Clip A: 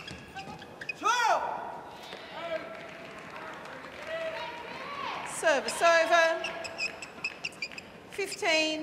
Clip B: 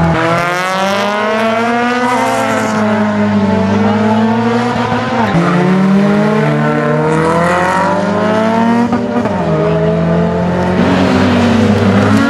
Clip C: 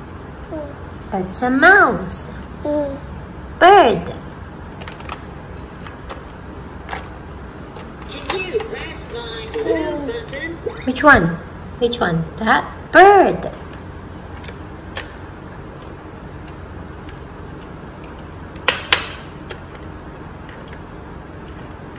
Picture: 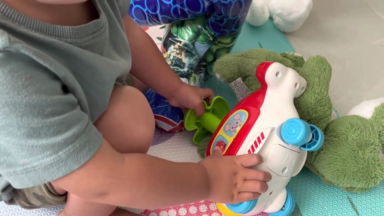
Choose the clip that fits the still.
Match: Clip C